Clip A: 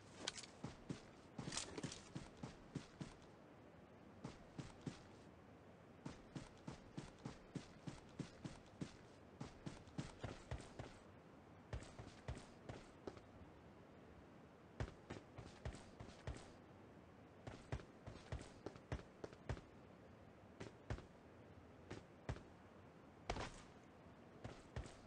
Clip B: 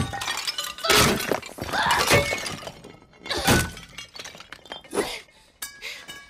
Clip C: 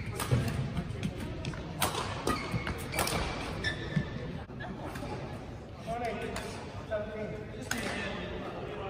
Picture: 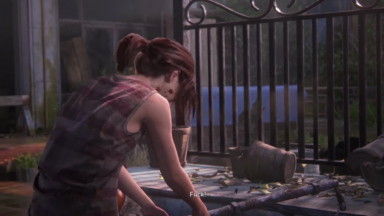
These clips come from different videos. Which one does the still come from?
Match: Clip B